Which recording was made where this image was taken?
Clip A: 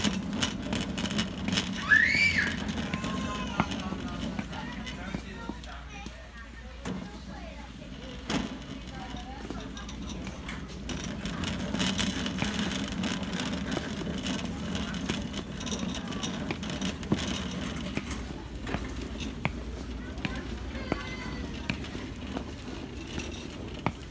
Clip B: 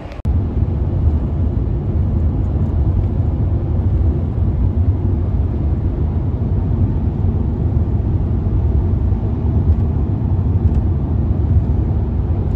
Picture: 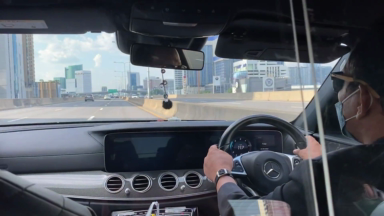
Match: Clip B